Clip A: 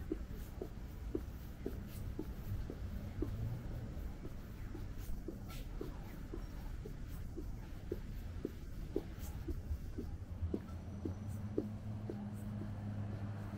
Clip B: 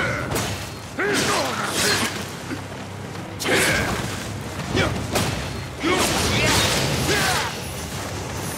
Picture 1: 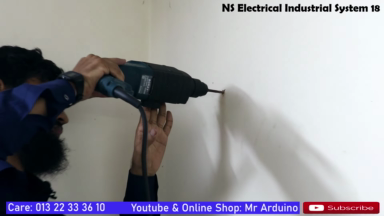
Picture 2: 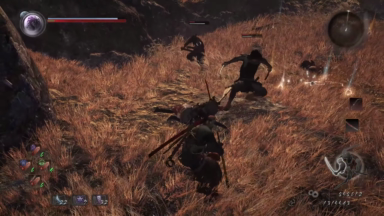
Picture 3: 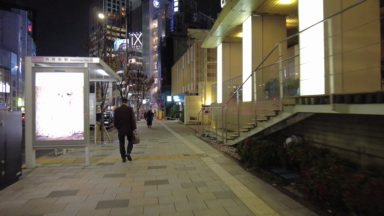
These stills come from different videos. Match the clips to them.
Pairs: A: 3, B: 2